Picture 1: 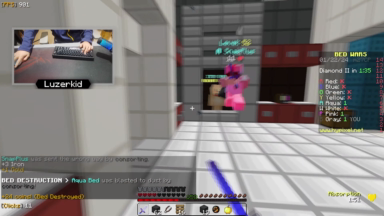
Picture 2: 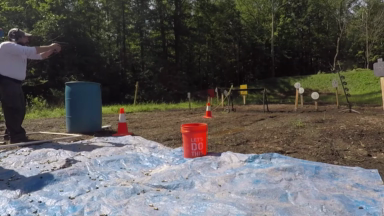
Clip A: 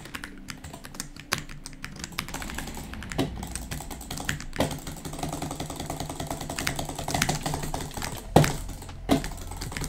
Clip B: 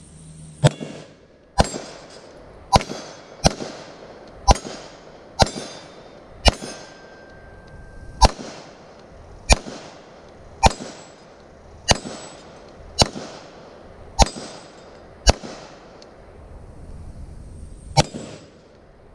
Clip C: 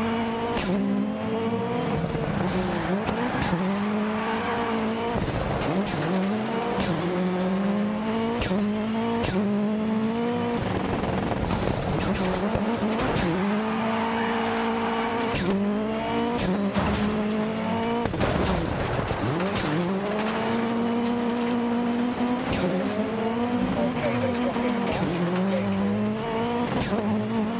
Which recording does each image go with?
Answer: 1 A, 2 B